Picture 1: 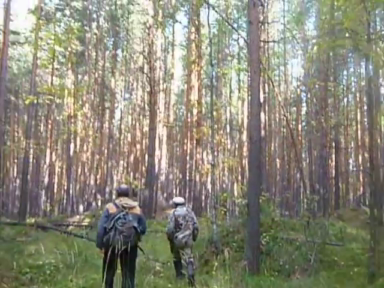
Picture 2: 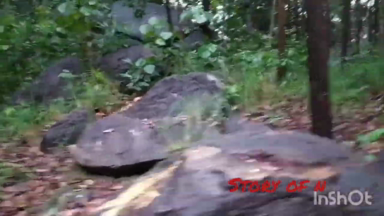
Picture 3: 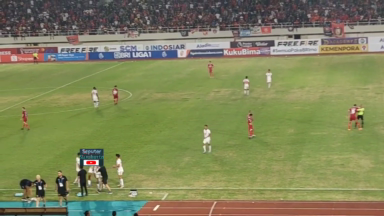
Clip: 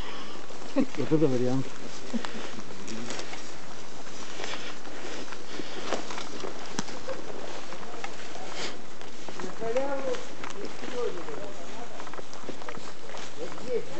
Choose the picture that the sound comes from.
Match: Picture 1